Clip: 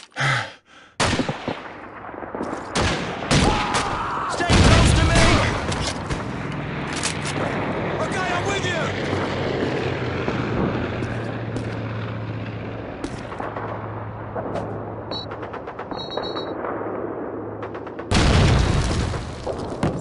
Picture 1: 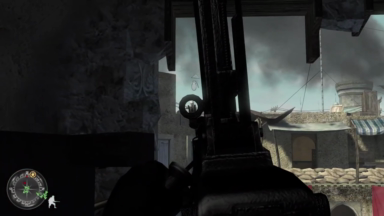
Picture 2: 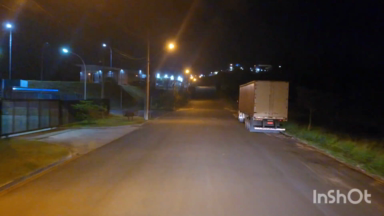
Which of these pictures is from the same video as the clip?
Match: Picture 1